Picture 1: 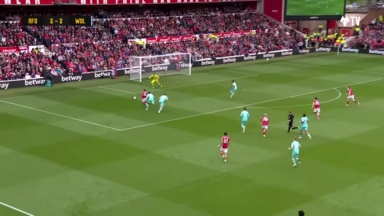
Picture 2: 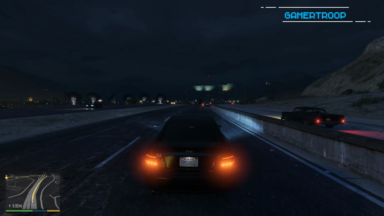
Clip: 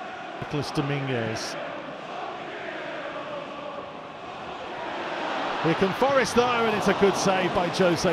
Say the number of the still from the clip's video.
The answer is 1